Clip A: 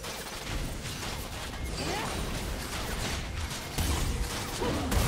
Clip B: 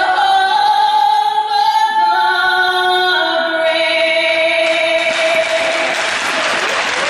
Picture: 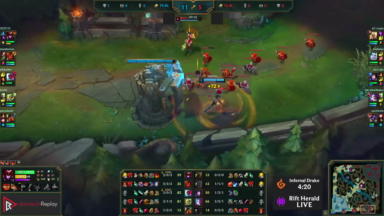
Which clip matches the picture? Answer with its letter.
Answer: A